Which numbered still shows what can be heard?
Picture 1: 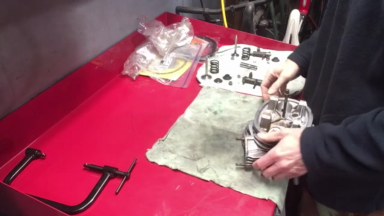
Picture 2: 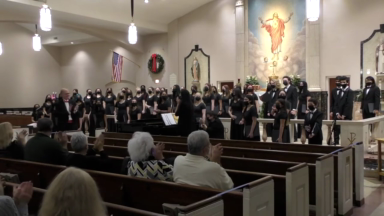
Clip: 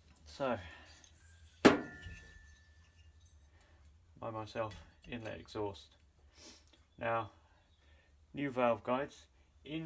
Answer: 1